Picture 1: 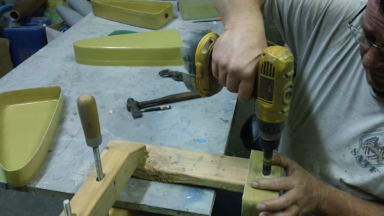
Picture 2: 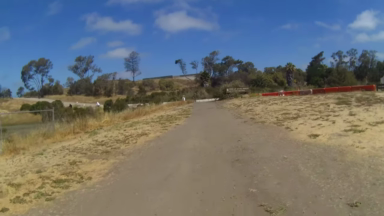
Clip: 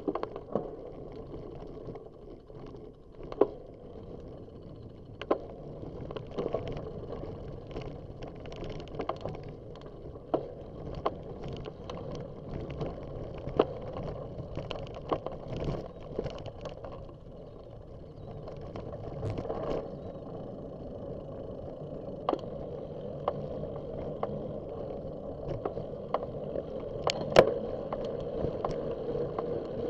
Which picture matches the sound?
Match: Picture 2